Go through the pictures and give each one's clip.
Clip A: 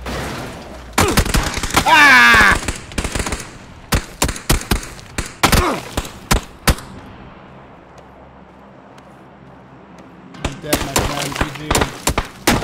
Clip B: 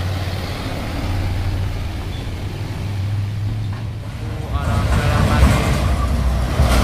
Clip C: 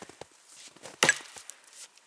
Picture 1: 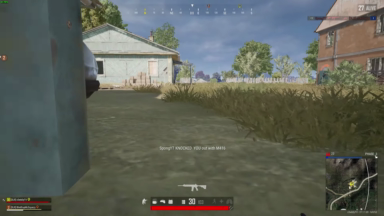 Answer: A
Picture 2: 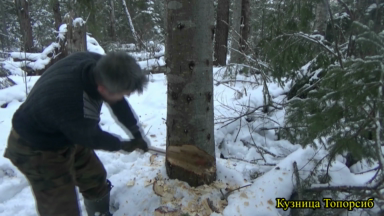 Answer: C